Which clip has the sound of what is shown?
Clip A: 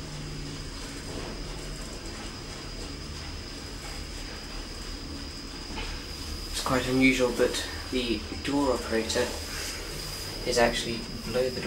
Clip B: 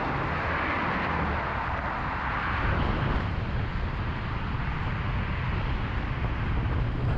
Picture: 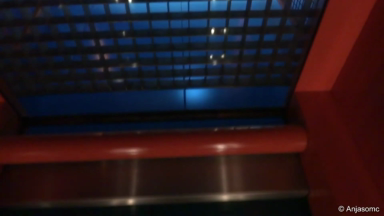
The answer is A